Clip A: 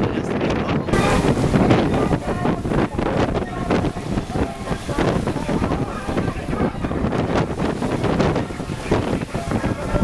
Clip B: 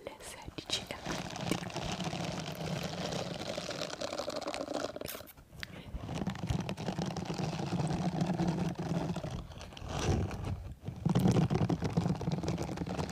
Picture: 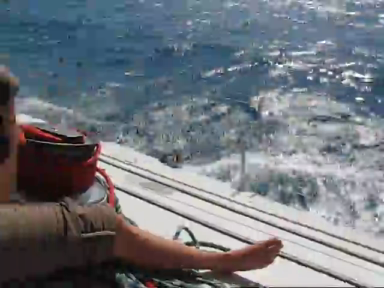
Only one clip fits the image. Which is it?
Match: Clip A